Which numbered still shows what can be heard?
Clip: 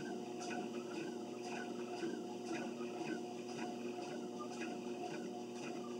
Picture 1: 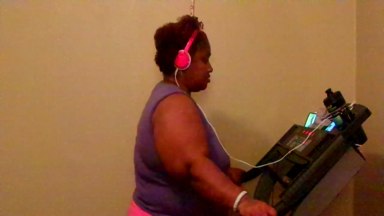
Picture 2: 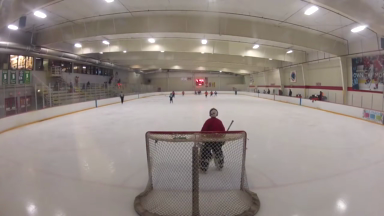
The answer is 1